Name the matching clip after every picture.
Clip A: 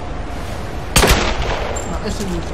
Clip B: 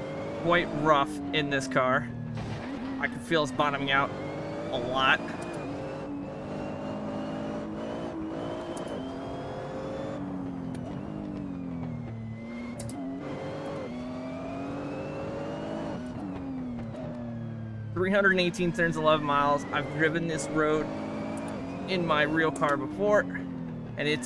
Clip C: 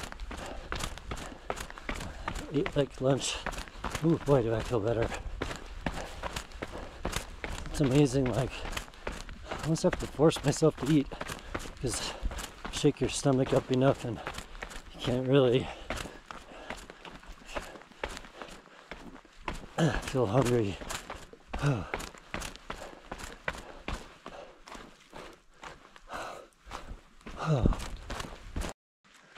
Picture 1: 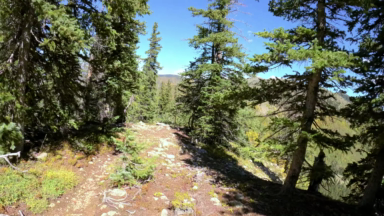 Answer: C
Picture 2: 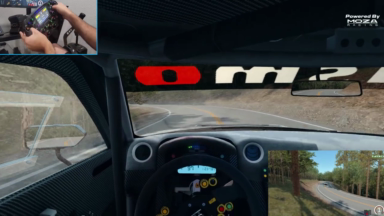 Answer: B